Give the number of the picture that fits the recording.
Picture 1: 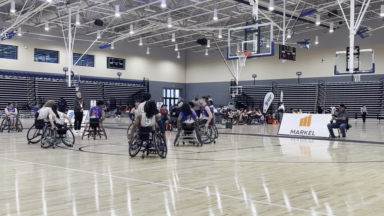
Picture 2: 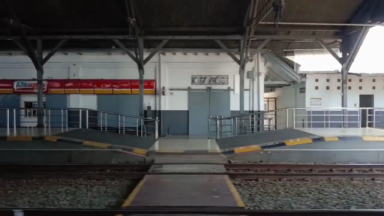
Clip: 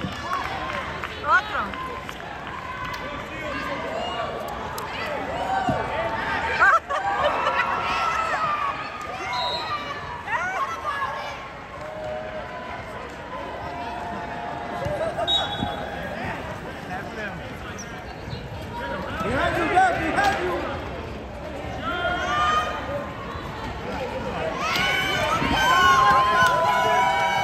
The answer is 1